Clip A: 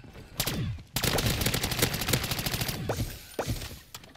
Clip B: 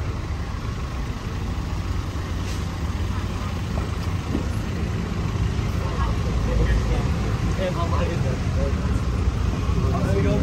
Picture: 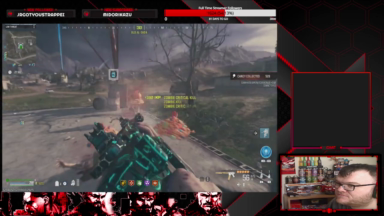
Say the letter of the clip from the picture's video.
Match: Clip A